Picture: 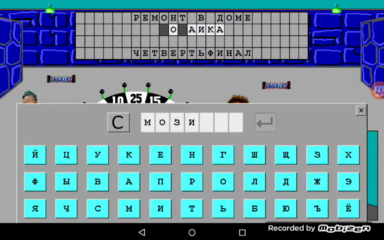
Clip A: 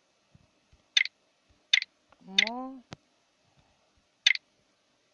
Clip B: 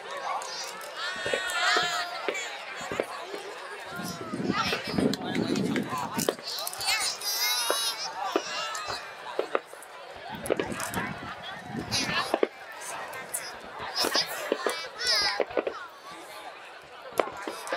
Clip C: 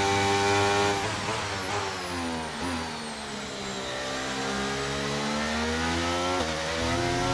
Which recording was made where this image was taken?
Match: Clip A